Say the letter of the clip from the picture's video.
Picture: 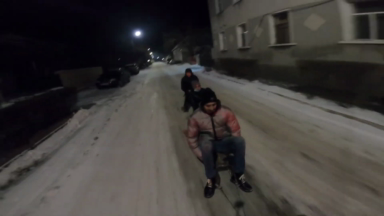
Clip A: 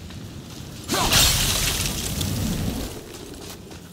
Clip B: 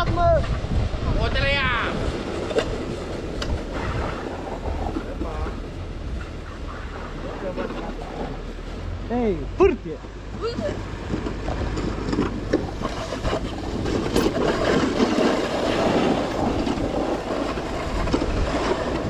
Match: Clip B